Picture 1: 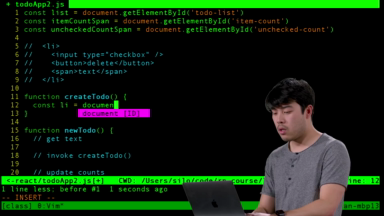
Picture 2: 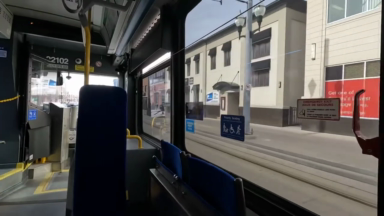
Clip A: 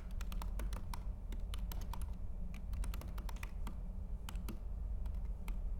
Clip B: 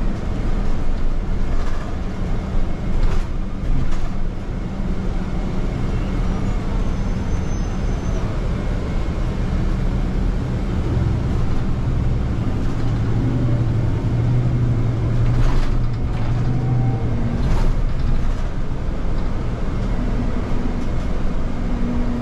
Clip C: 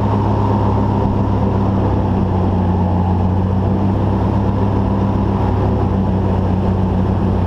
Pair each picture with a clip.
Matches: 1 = A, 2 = B